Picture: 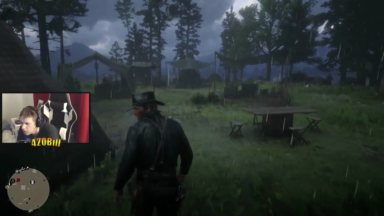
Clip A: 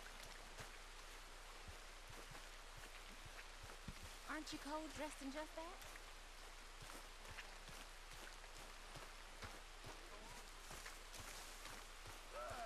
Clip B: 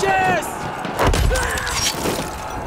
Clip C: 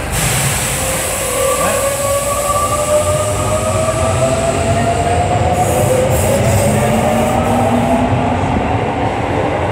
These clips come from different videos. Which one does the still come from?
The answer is A